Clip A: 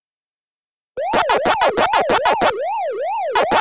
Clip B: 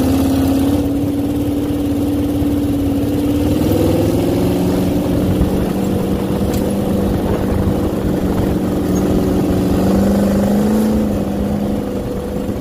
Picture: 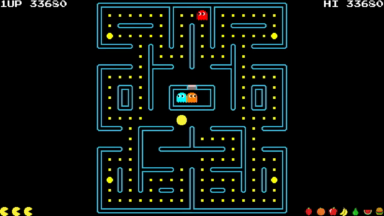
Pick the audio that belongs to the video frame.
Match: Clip A